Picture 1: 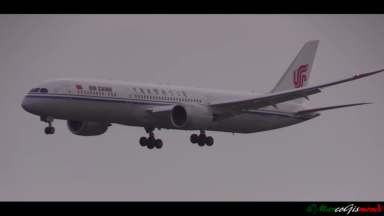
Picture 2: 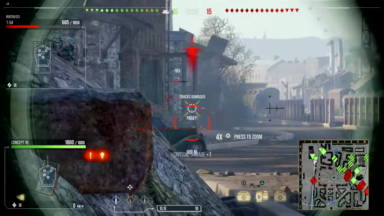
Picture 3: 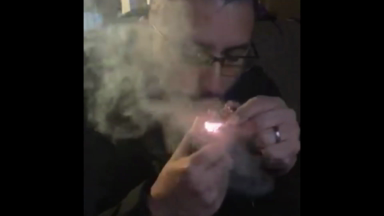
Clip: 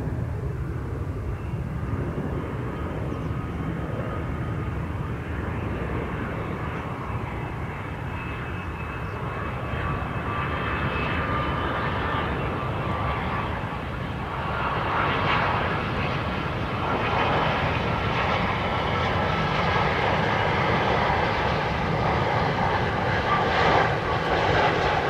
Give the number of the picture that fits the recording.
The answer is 1